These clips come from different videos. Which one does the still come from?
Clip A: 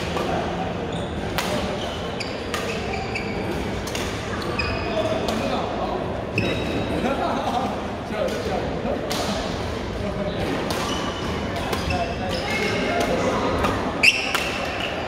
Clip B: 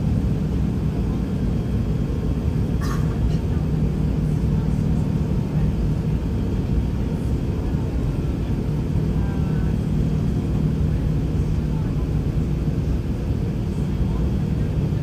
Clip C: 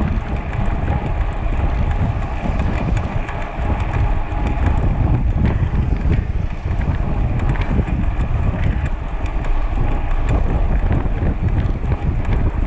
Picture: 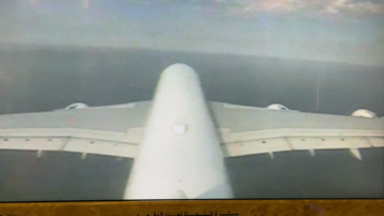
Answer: B